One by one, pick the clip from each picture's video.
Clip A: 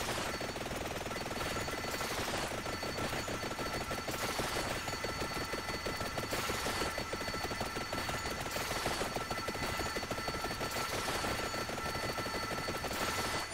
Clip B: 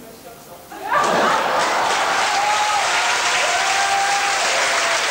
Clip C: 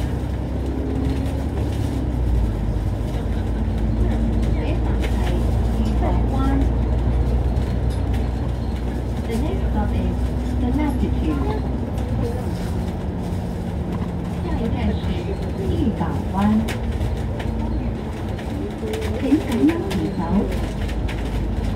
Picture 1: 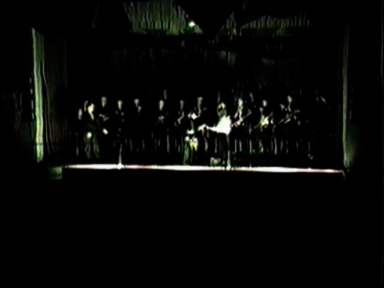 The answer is B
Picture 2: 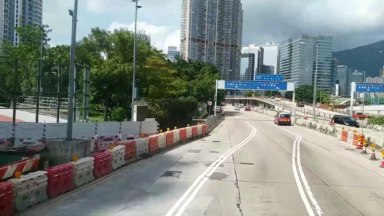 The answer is C